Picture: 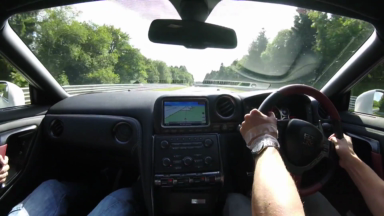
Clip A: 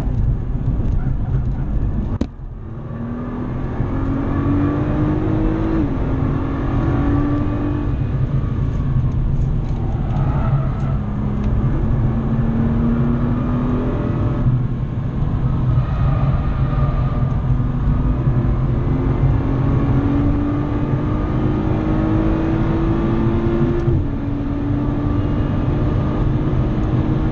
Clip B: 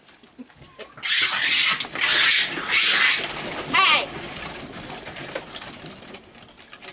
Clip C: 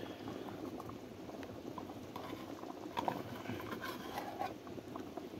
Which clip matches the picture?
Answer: A